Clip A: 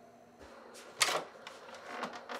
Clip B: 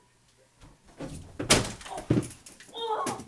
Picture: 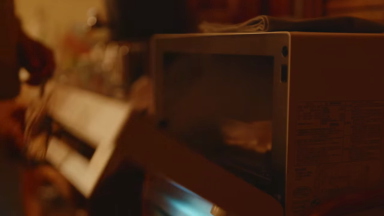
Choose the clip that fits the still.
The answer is A